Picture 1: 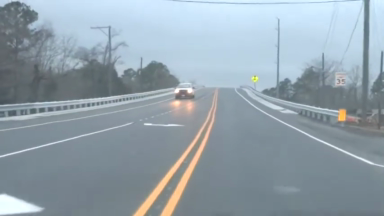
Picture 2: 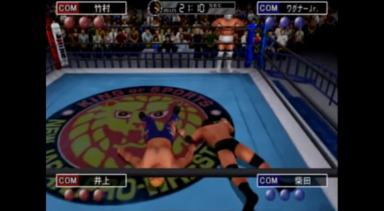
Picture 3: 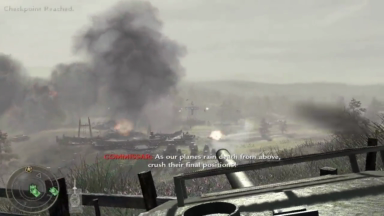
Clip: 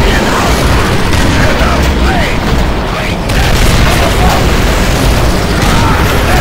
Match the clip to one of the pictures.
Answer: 3